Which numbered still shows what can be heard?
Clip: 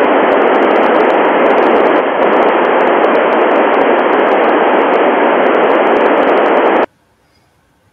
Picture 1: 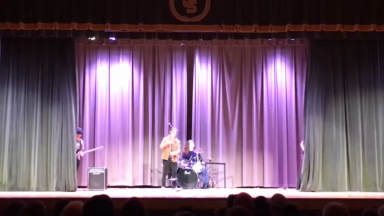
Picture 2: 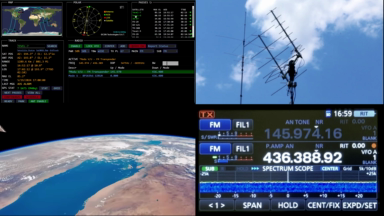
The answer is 2